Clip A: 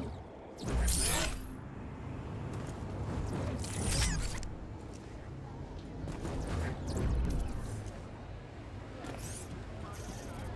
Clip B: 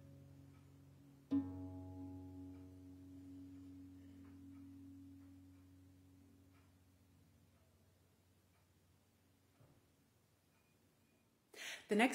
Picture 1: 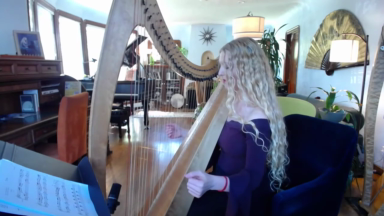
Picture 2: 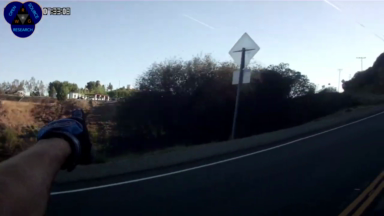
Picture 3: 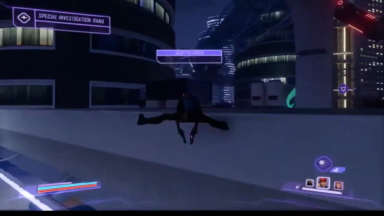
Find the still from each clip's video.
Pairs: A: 3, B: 1